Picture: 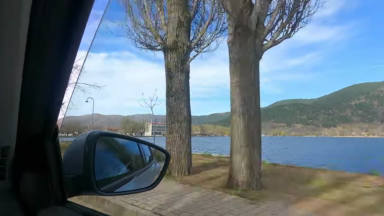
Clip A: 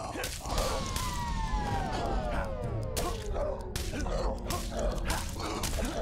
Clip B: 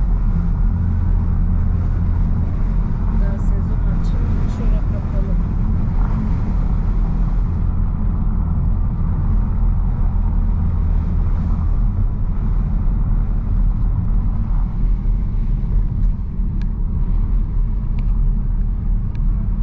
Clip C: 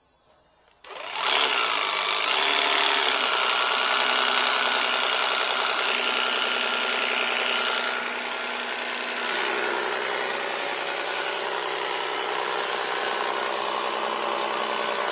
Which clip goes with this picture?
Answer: B